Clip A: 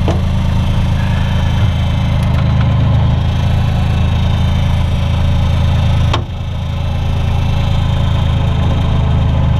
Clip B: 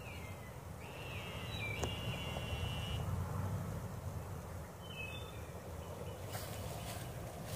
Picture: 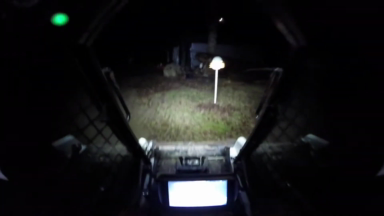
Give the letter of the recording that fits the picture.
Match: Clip A